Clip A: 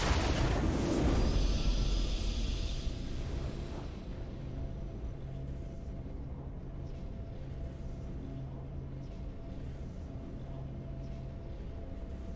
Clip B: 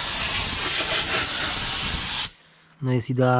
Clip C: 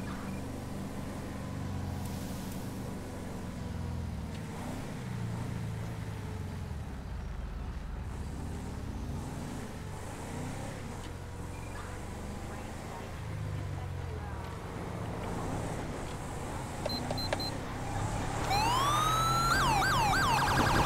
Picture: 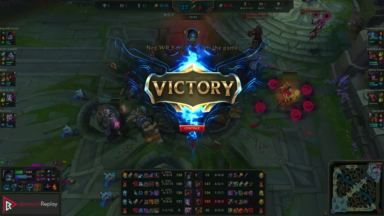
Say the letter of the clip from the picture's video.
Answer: A